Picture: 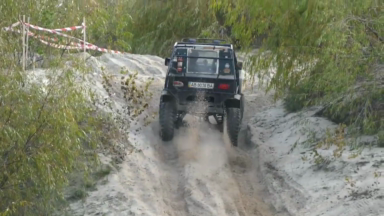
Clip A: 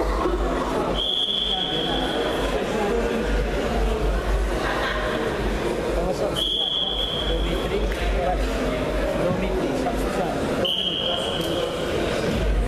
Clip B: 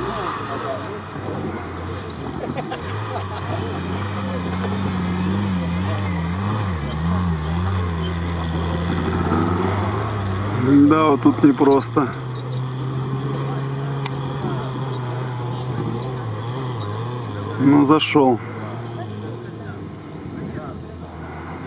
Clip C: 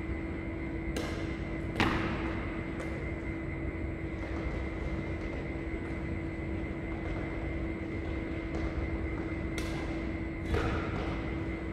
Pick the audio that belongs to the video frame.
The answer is B